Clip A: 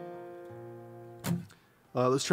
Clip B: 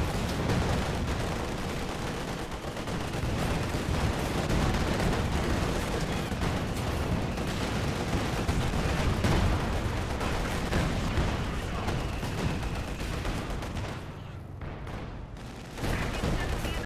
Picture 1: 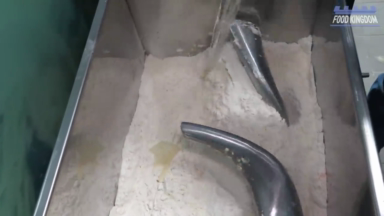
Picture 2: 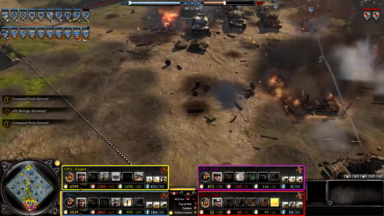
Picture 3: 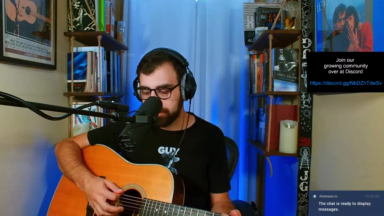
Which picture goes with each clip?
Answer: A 3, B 2